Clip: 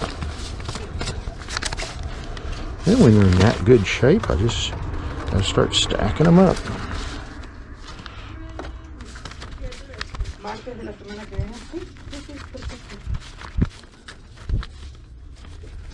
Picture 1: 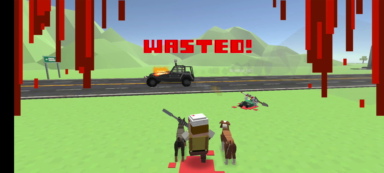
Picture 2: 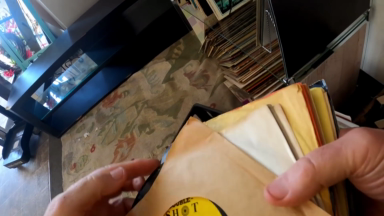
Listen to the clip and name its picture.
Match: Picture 2